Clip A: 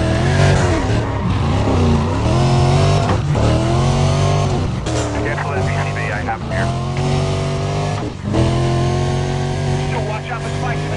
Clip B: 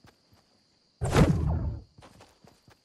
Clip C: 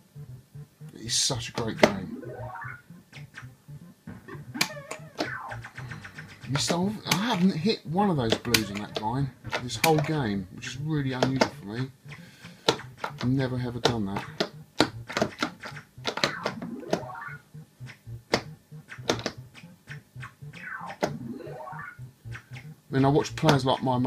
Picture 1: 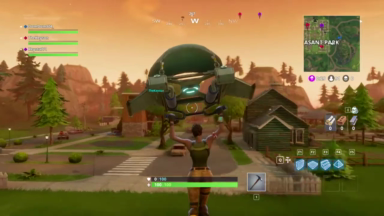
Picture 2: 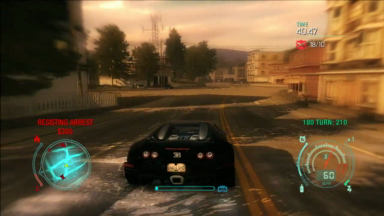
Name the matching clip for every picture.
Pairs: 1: B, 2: A